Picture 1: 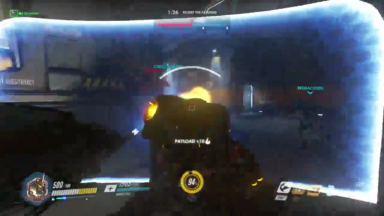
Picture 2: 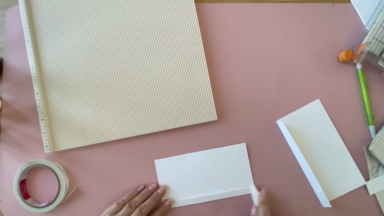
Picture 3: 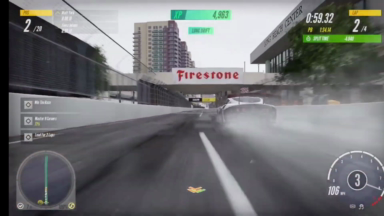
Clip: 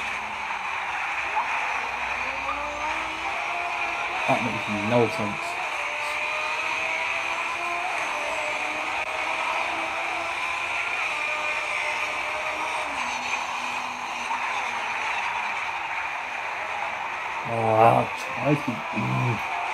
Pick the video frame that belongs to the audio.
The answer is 3